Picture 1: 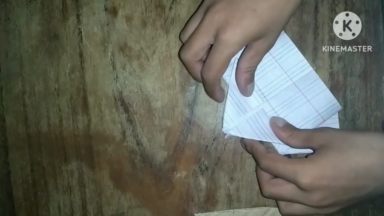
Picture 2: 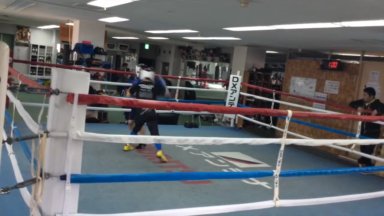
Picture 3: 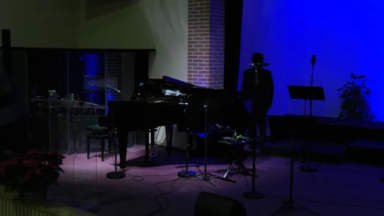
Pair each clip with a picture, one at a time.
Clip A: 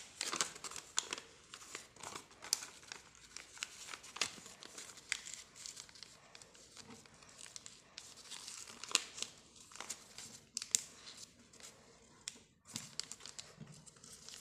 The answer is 1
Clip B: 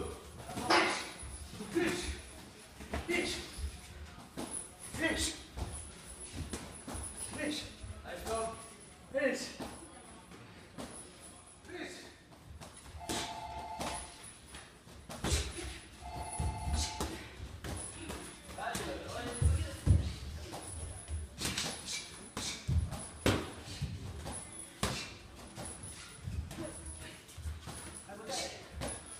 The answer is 2